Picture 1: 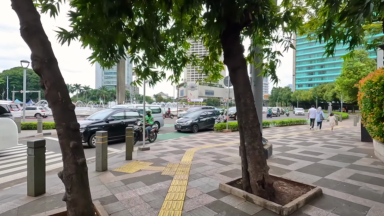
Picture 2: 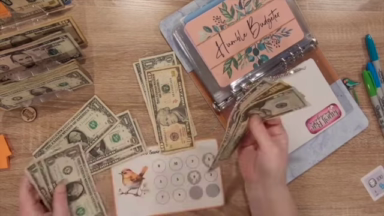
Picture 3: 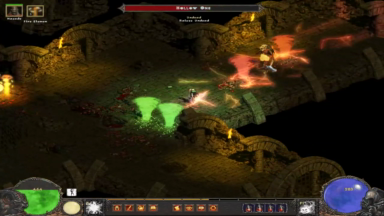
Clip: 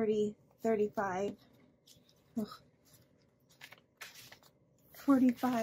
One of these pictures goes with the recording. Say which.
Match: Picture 2